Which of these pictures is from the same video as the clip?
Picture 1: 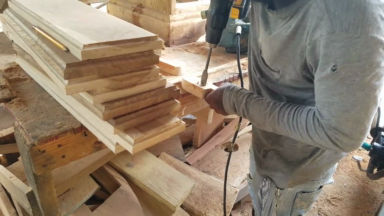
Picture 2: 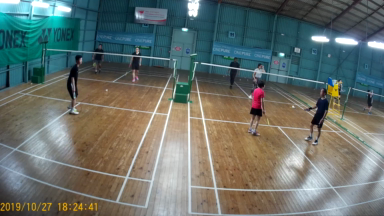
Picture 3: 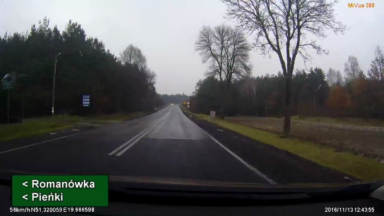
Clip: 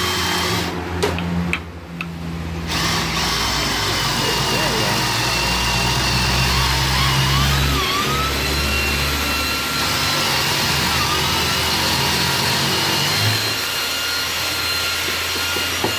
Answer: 1